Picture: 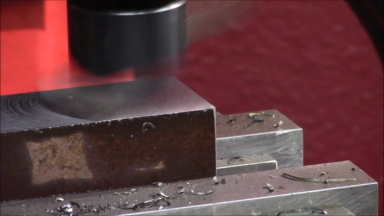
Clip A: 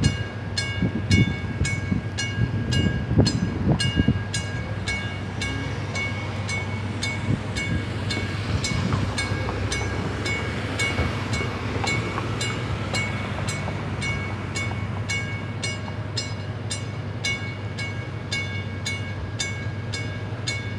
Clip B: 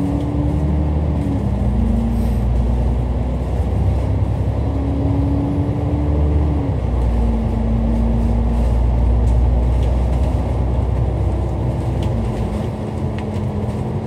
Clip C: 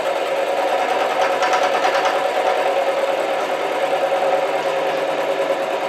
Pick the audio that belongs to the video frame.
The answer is C